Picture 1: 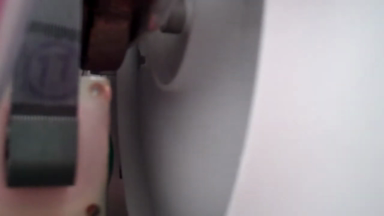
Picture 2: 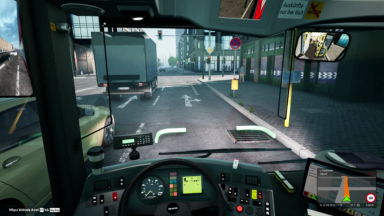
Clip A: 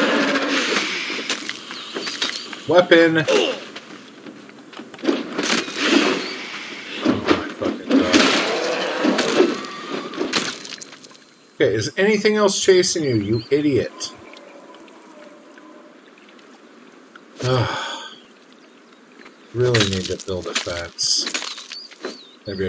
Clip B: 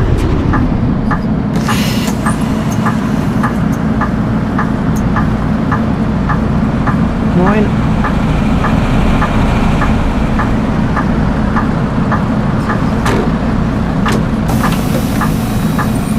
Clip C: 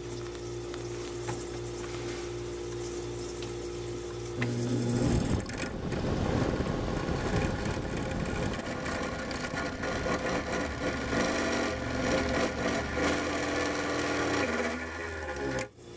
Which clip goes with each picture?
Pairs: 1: C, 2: B